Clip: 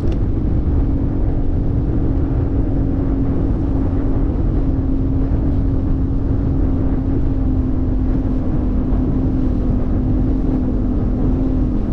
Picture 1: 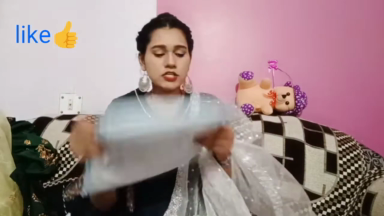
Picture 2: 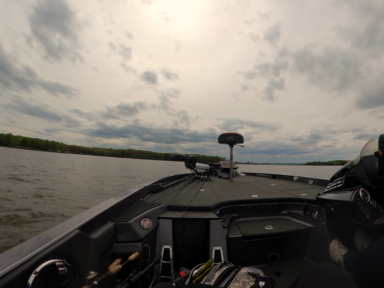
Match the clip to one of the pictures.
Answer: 2